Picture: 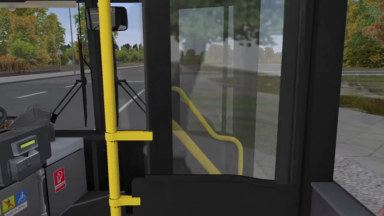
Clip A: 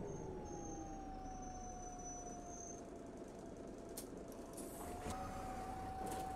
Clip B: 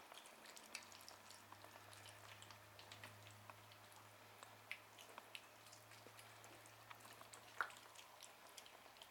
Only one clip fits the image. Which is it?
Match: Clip A